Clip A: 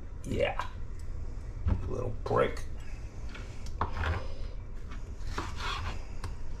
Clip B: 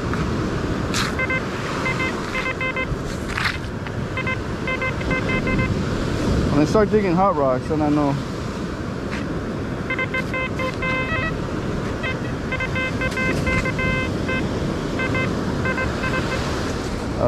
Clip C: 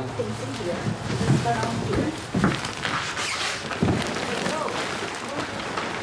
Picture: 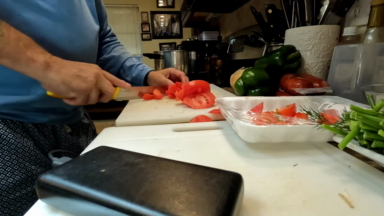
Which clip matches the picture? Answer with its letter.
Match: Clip A